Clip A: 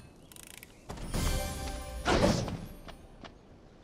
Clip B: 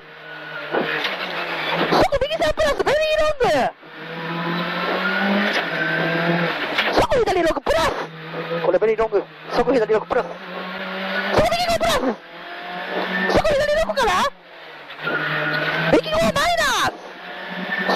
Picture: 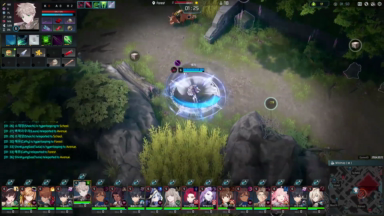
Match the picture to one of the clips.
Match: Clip A